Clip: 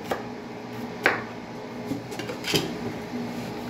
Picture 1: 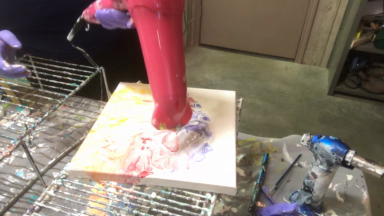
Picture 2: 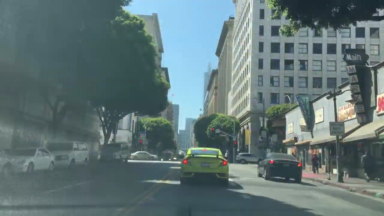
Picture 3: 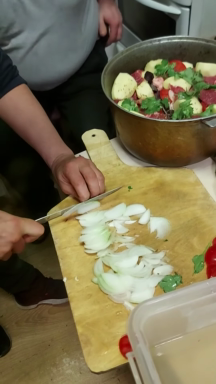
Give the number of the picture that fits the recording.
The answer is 3